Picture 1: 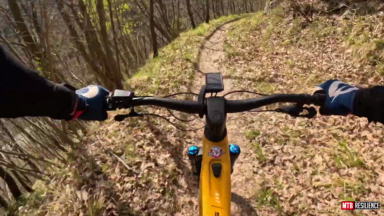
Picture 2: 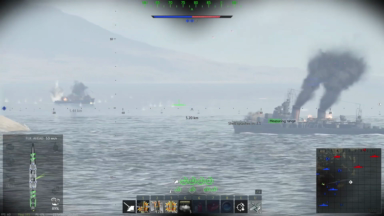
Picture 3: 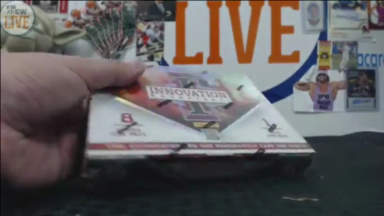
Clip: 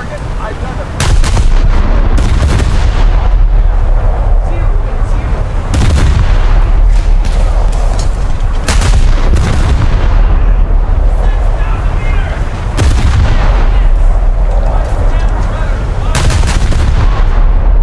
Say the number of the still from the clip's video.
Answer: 2